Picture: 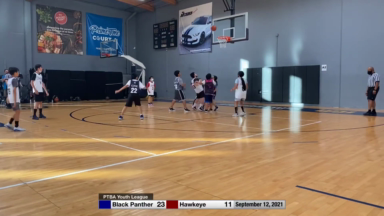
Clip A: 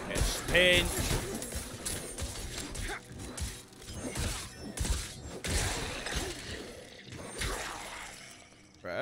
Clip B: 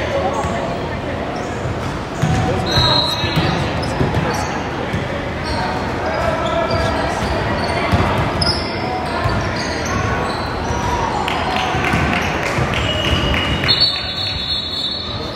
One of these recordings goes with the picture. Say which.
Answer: B